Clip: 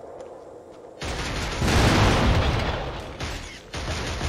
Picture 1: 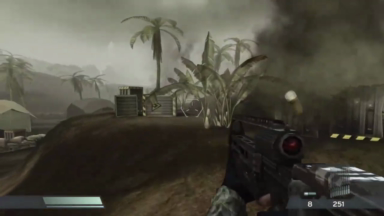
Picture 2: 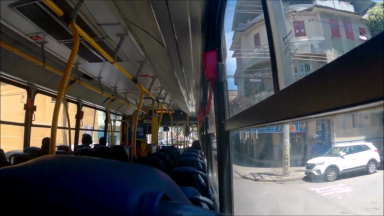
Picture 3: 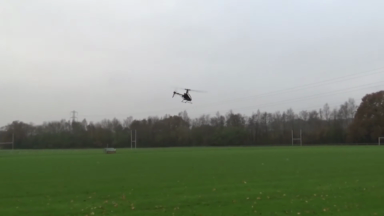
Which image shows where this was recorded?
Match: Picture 1